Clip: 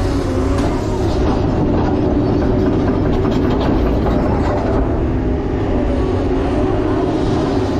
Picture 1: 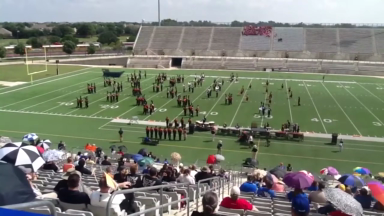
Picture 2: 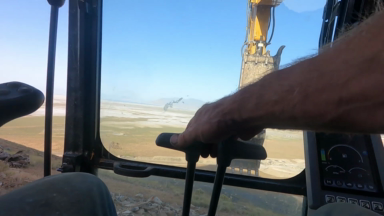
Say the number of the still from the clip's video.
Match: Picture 2